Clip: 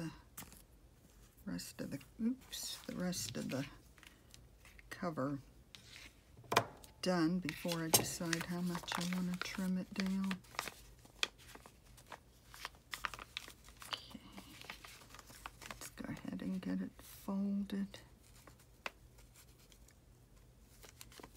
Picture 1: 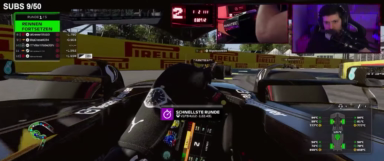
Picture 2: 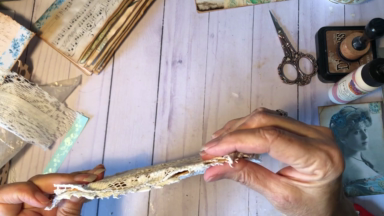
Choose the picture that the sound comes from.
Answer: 2